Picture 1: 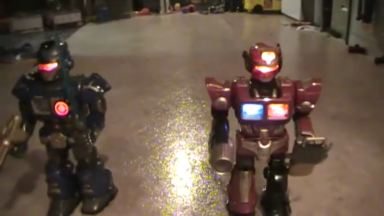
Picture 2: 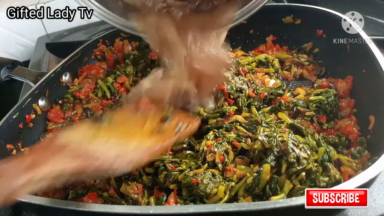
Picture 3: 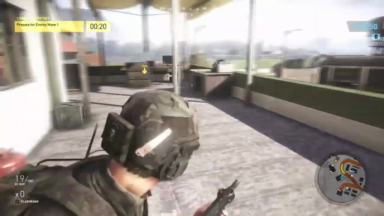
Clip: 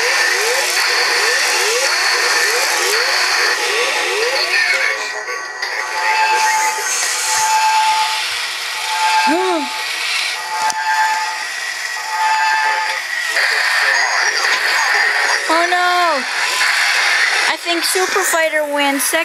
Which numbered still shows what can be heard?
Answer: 1